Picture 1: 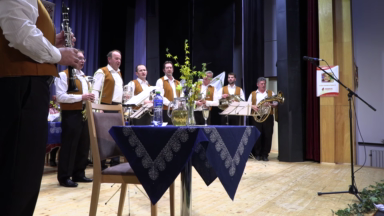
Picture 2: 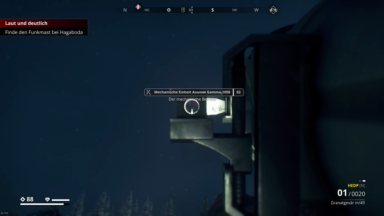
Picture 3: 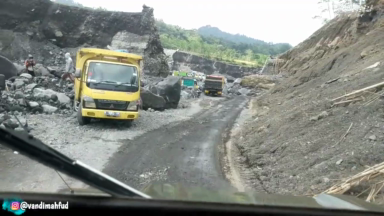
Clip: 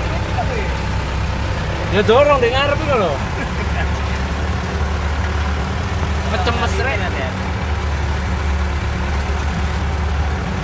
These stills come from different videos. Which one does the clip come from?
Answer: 3